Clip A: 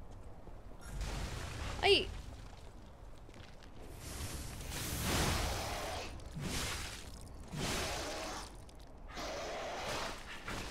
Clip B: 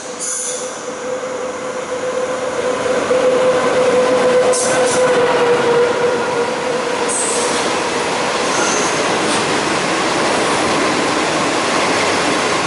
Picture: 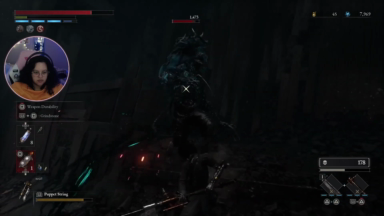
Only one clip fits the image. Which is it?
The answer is A